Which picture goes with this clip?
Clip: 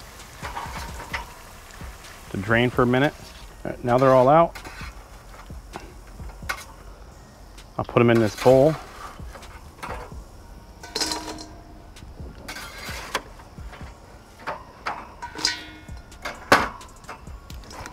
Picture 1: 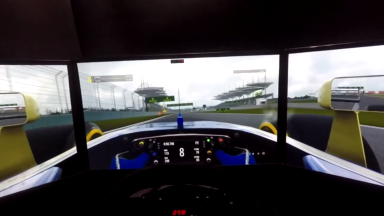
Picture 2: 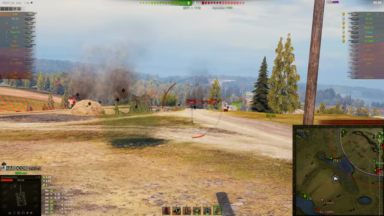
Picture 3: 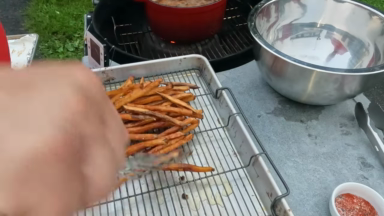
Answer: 3